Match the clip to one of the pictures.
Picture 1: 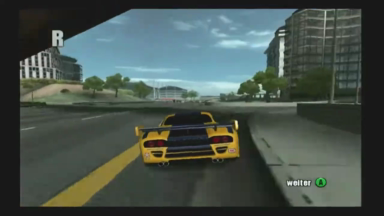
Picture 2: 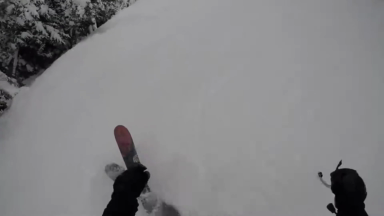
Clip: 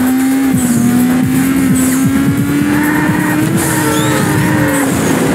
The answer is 1